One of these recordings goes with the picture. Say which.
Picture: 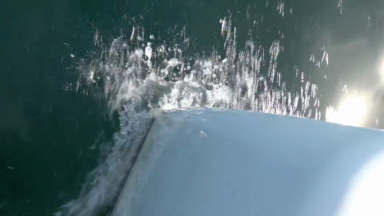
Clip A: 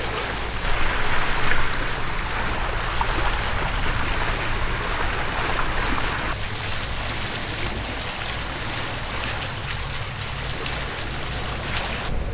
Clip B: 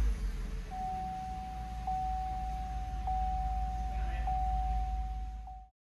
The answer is A